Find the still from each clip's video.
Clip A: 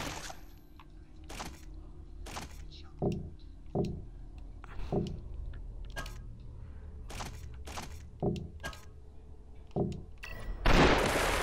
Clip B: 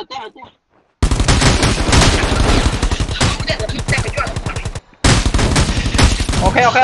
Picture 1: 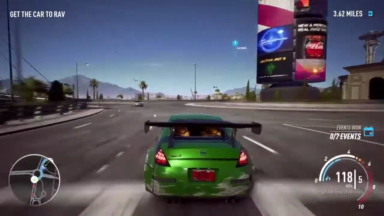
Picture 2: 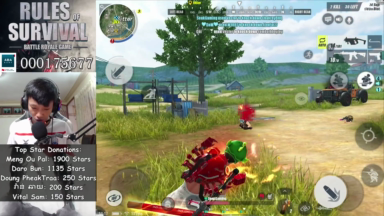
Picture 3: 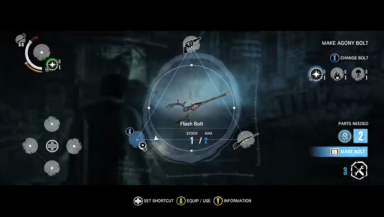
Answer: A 3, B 2